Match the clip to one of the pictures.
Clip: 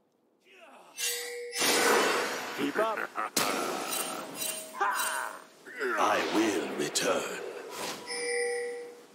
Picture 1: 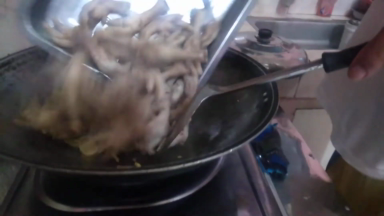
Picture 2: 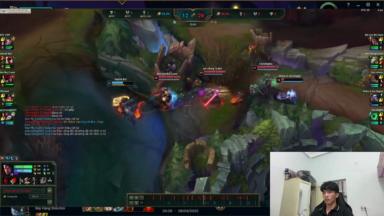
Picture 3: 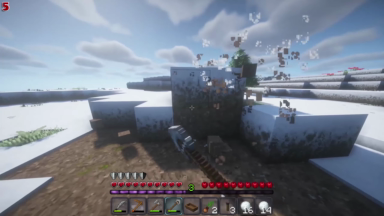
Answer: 2